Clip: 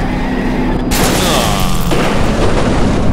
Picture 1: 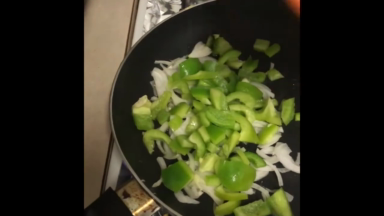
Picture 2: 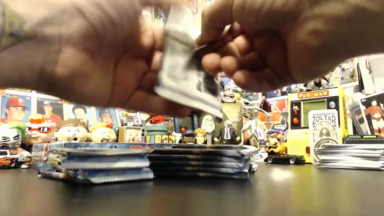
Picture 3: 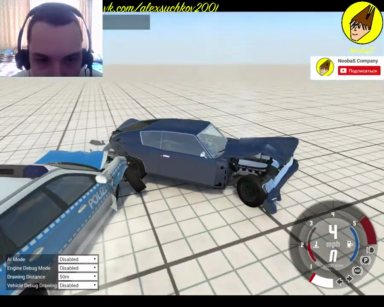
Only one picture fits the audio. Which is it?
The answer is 3